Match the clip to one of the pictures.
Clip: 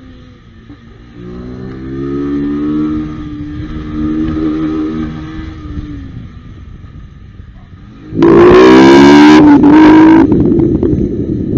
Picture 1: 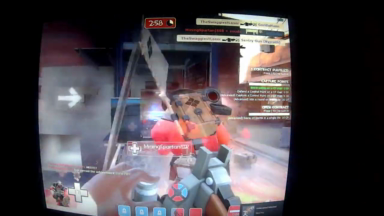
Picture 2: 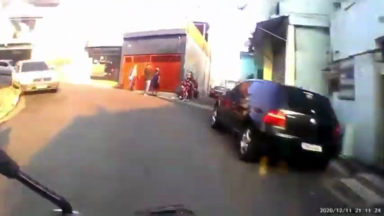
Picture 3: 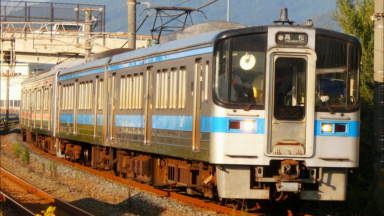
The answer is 2